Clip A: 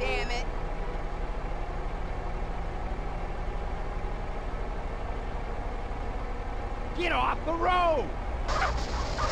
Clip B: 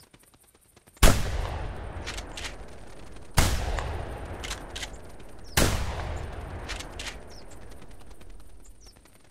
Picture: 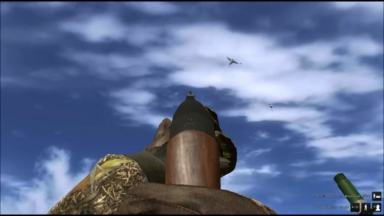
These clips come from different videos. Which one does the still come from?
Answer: B